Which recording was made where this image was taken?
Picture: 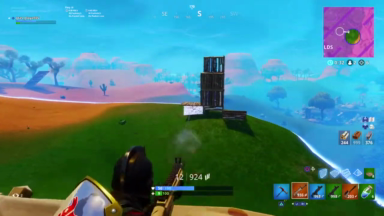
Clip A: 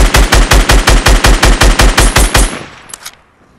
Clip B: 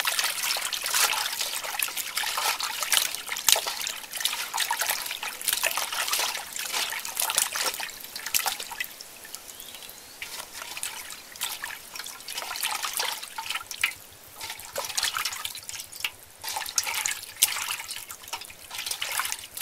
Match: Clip A